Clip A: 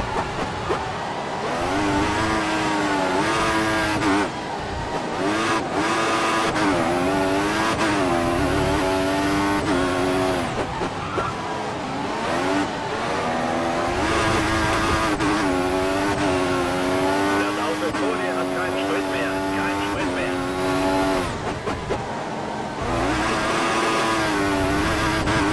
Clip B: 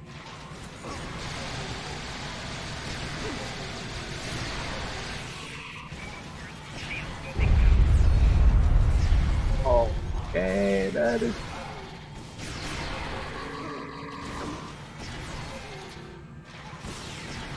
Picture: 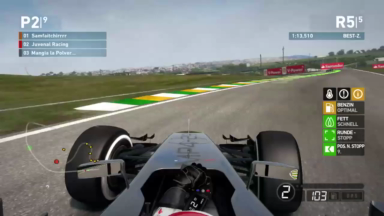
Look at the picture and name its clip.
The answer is A